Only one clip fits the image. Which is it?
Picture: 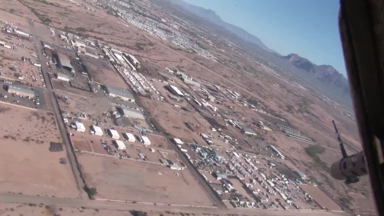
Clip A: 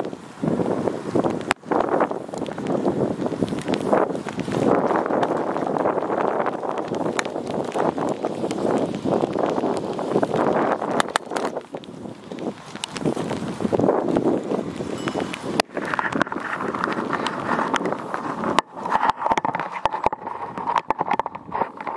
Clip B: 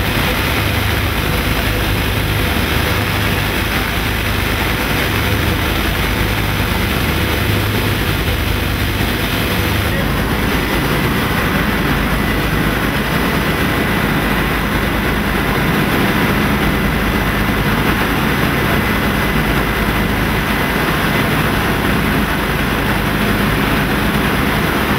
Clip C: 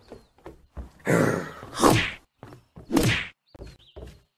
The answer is B